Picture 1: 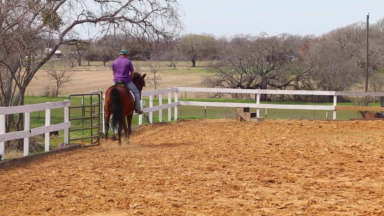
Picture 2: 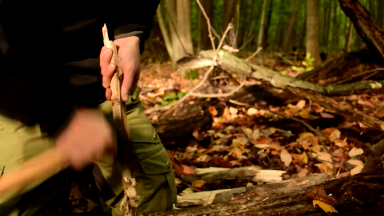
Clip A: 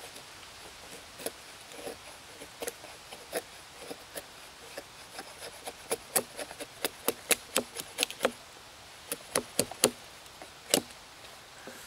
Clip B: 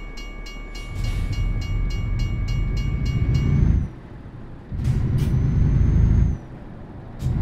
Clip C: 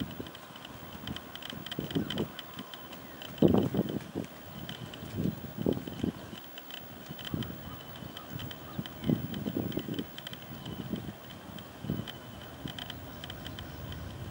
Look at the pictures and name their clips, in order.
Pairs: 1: C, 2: A